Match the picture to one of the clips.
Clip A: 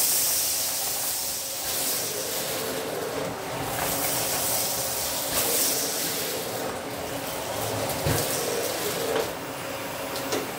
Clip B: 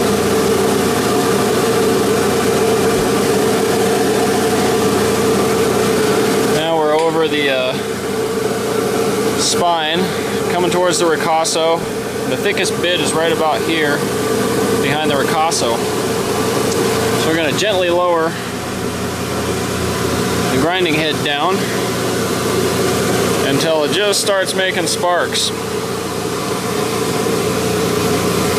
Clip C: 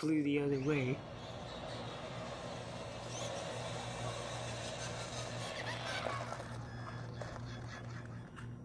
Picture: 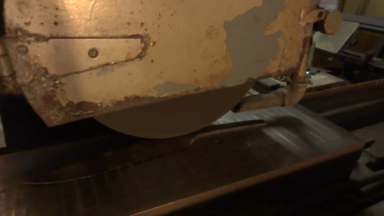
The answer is B